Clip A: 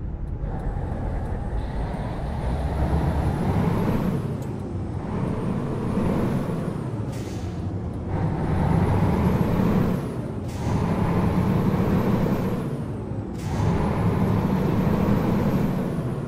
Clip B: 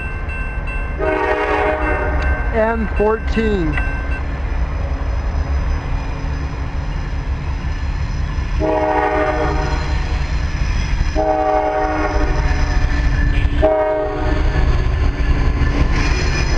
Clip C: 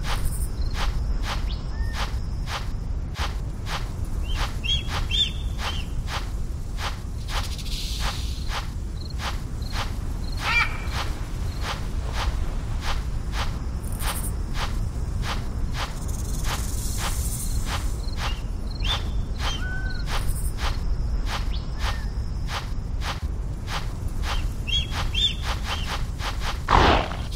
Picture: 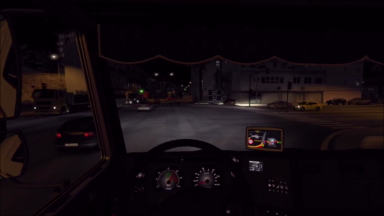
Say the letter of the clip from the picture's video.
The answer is A